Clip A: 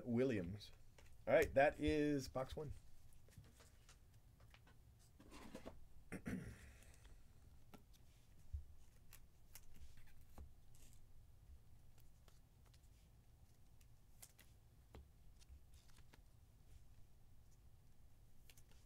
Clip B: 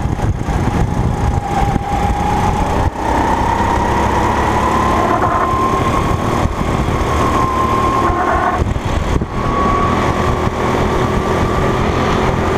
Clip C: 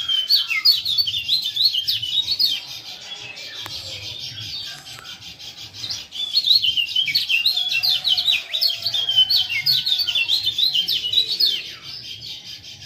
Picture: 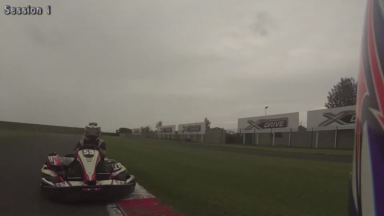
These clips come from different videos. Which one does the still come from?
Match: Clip B